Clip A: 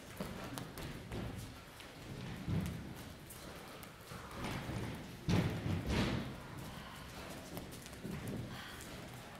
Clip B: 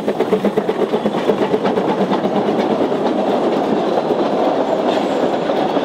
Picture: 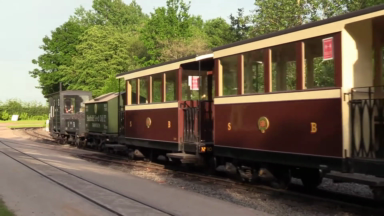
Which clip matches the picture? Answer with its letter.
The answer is B